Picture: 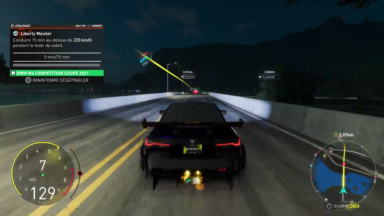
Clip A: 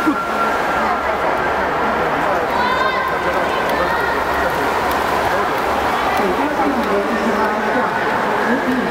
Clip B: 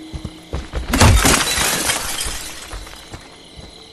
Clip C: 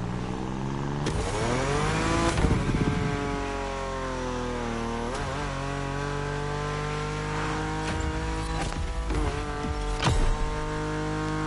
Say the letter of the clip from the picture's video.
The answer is C